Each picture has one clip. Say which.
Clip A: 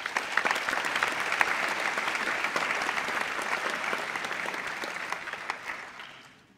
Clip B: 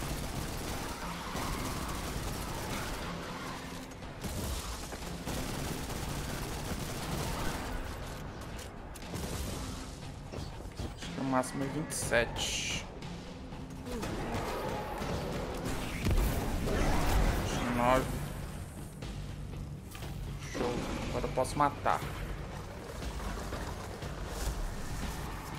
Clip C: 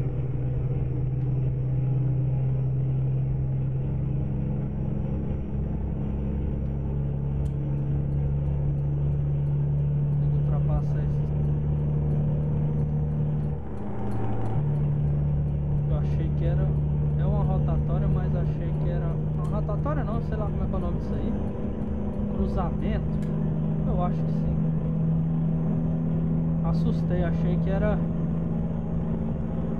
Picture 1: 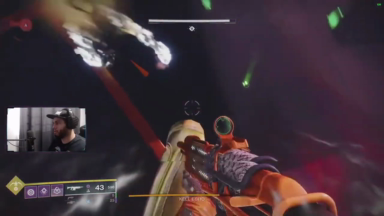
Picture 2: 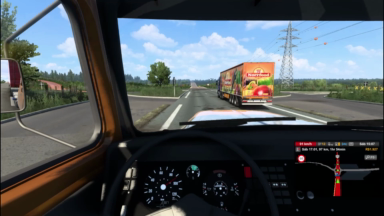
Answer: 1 B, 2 C